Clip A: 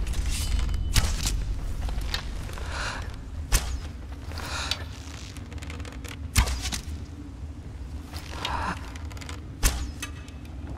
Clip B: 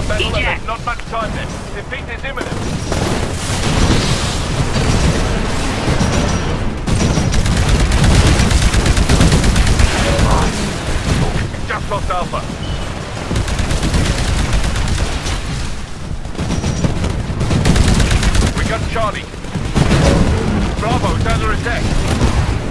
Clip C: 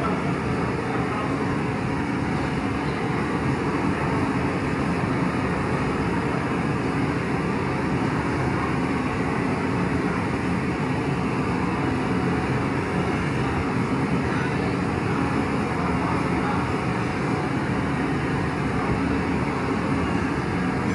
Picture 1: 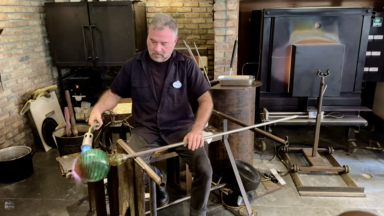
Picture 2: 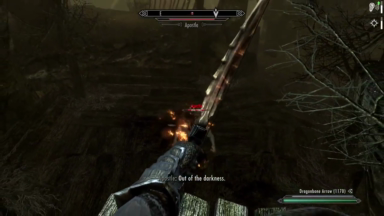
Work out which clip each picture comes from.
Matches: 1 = C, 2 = A